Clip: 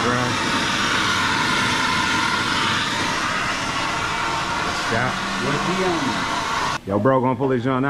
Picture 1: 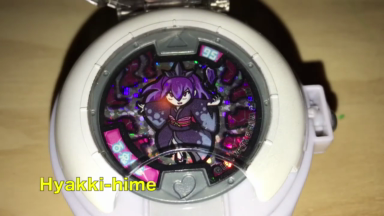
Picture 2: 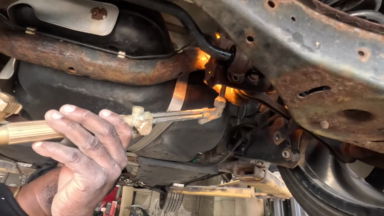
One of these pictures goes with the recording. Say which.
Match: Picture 2